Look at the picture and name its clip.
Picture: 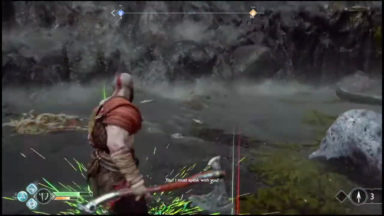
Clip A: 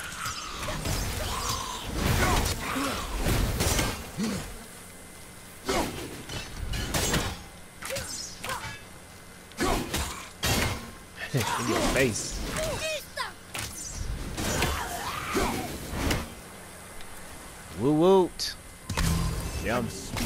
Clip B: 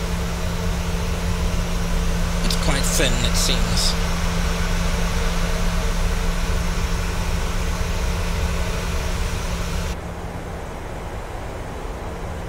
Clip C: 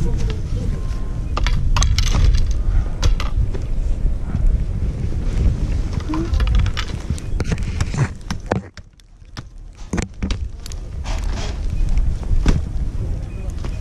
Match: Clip A